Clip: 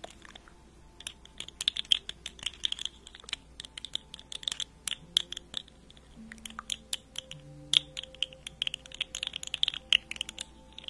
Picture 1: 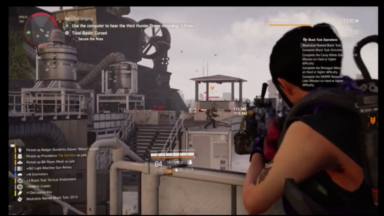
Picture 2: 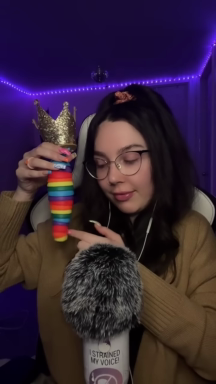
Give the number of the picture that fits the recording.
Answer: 2